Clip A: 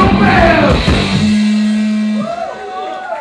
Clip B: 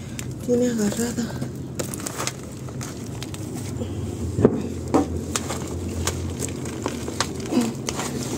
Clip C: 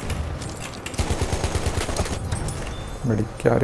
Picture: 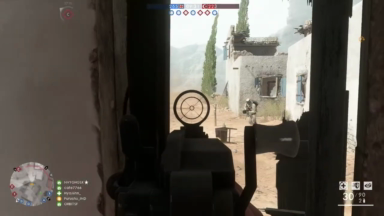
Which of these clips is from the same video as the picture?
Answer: C